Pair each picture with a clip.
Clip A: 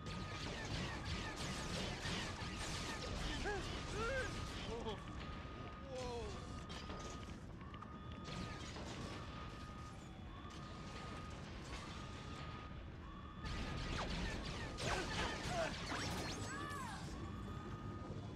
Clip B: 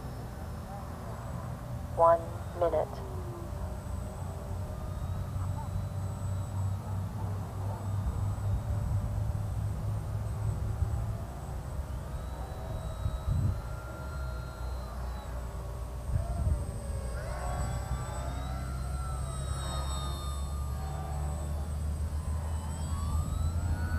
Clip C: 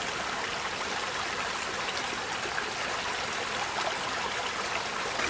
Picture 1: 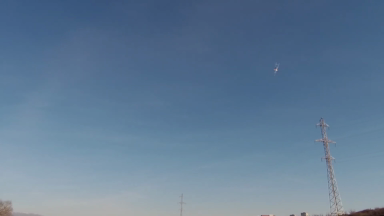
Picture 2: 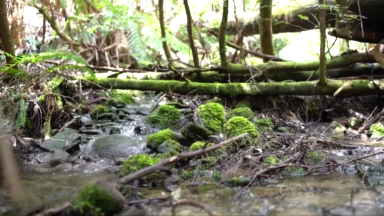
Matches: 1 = B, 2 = C